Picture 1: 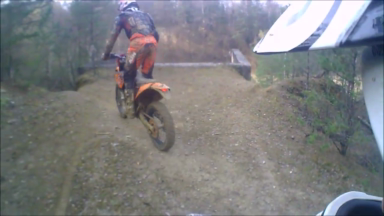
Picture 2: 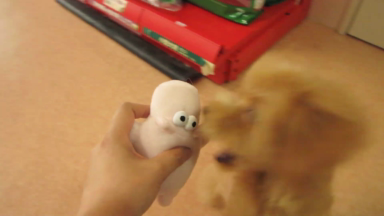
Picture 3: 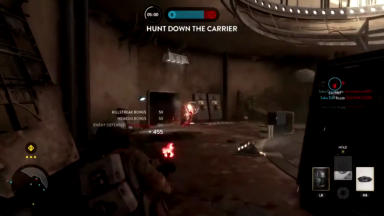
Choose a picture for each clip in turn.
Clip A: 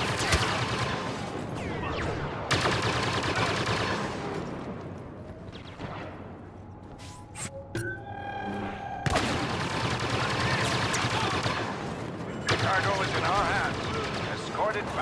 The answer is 3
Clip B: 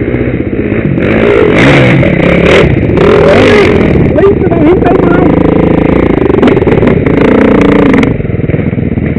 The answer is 1